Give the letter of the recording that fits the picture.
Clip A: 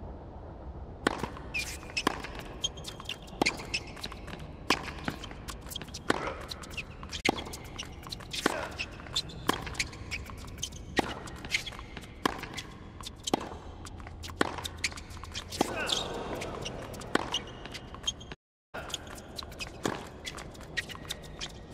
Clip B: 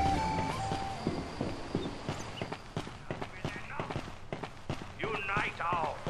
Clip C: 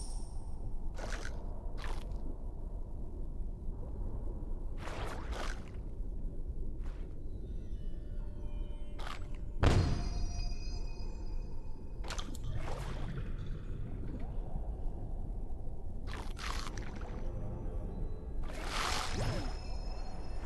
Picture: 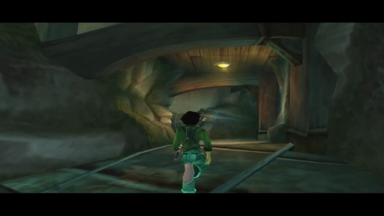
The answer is B